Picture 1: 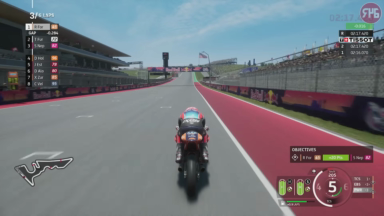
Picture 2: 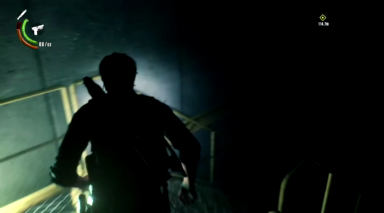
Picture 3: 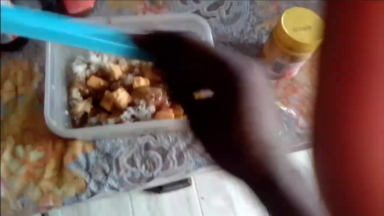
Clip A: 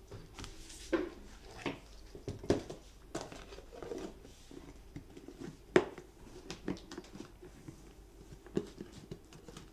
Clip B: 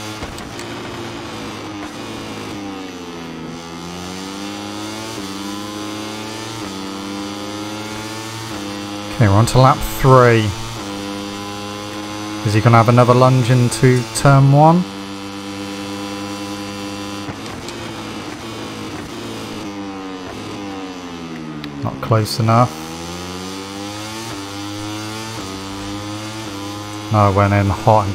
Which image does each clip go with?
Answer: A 3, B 1